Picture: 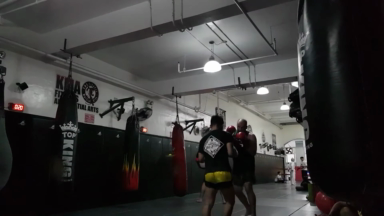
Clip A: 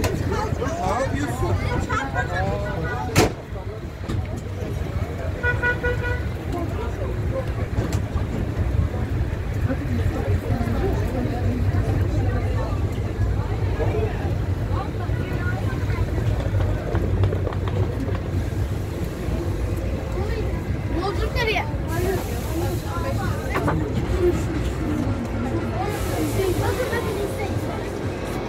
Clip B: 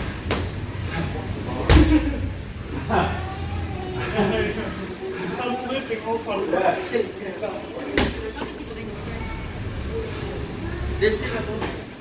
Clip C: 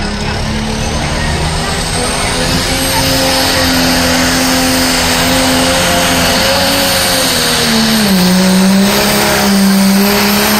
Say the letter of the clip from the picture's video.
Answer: B